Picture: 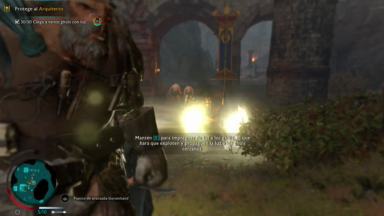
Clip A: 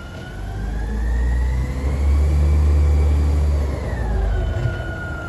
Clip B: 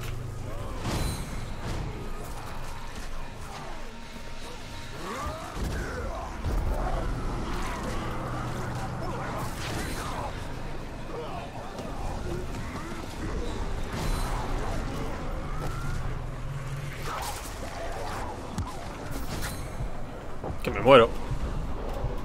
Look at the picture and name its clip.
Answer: B